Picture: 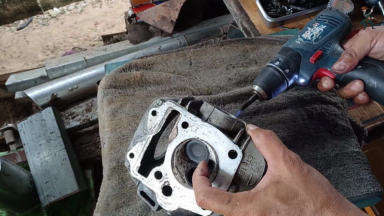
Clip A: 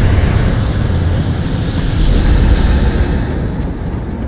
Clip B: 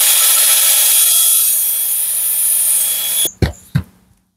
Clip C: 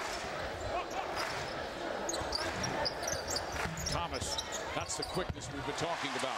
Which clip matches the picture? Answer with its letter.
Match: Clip B